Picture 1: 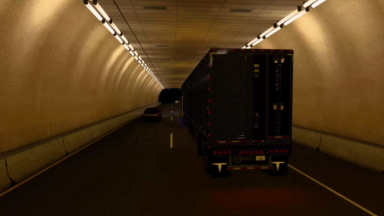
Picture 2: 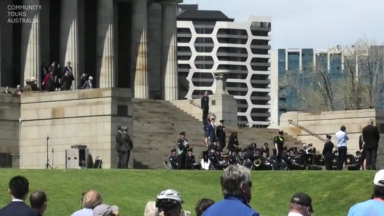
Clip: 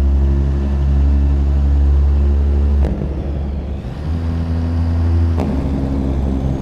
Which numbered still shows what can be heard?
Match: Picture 1